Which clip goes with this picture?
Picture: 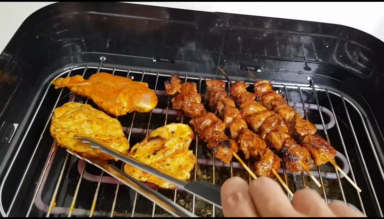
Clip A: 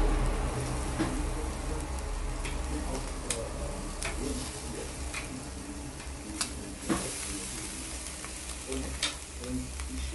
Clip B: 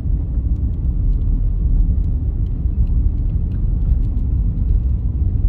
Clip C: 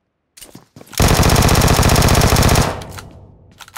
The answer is A